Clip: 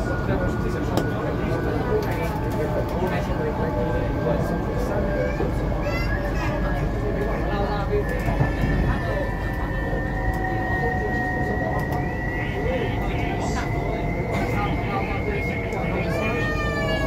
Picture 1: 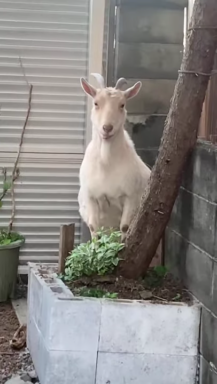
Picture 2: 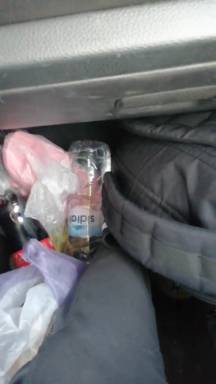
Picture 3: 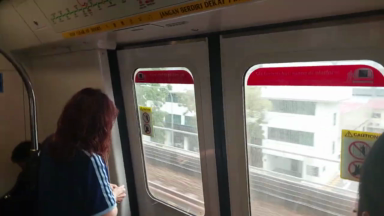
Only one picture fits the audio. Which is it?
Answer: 3